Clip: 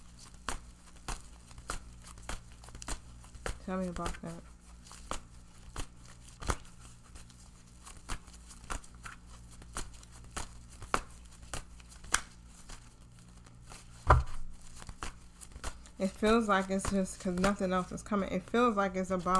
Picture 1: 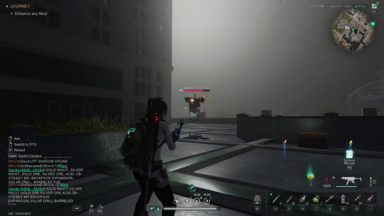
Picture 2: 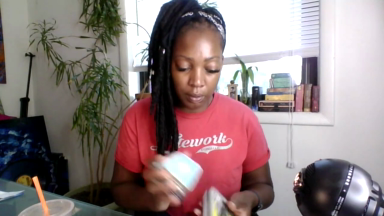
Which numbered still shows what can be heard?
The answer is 2